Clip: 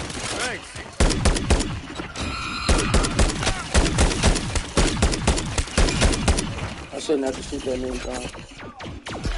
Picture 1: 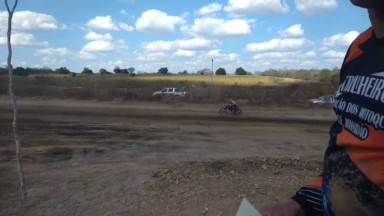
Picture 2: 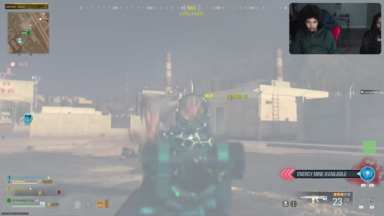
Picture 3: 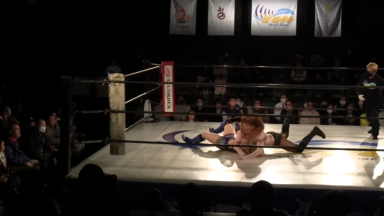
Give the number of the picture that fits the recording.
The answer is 2